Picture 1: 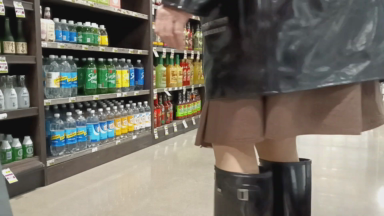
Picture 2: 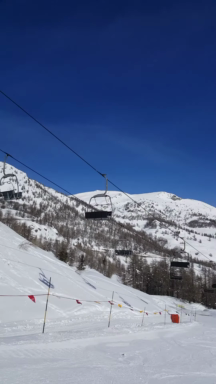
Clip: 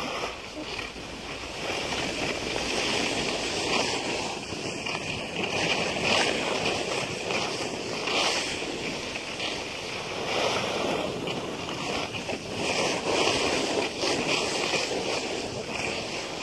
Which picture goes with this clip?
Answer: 2